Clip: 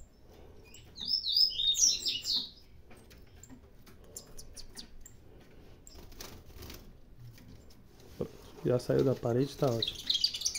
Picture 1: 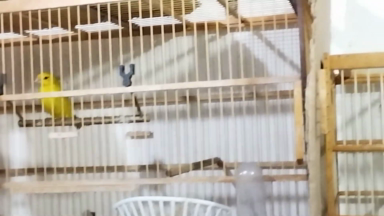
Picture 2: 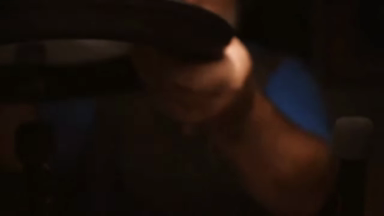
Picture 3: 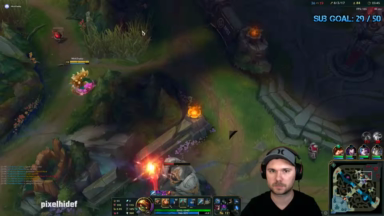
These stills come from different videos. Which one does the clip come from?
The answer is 1